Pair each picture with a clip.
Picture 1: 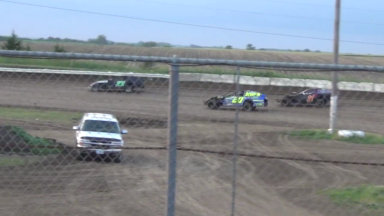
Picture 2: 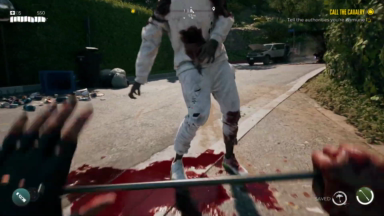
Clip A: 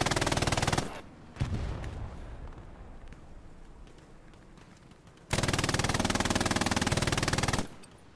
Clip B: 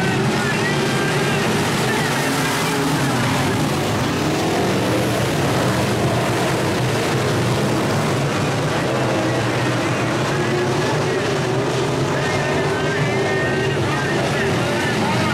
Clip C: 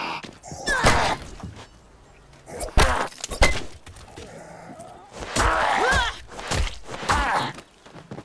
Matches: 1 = B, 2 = C